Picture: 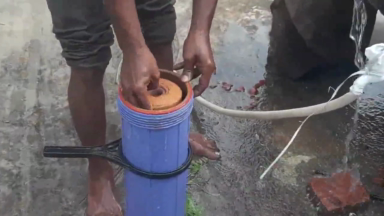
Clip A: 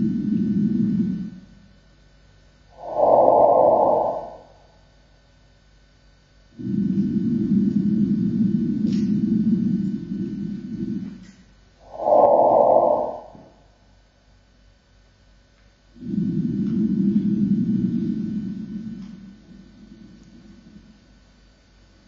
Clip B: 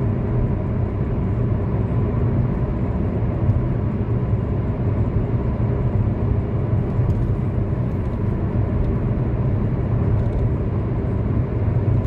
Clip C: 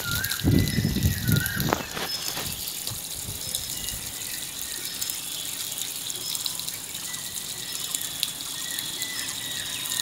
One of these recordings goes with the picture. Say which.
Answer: C